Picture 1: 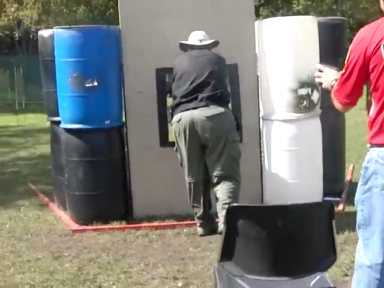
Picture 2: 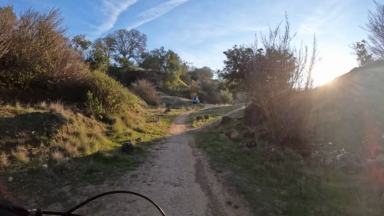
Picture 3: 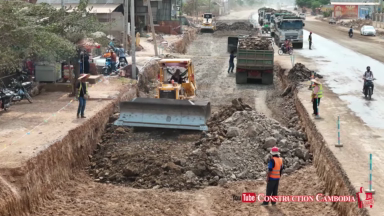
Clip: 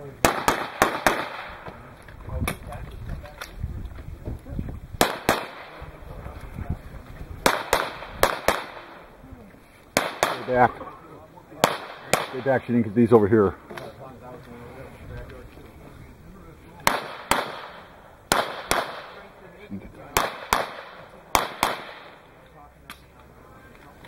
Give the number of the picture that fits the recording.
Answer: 1